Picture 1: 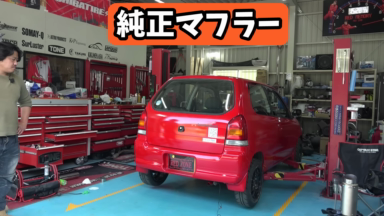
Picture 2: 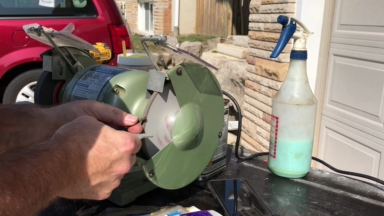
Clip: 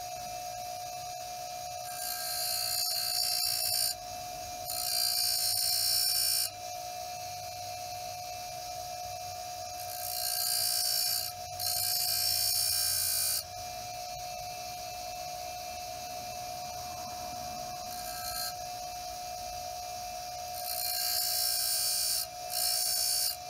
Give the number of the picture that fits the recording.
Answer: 2